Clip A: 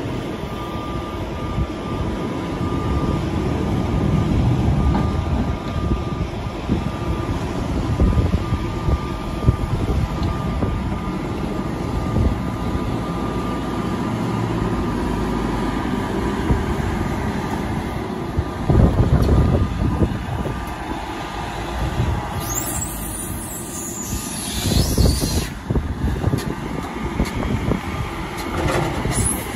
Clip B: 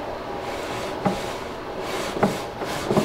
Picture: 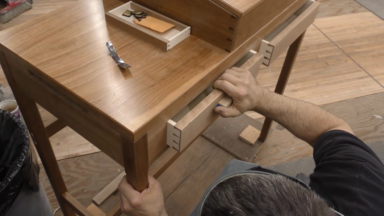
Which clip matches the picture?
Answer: B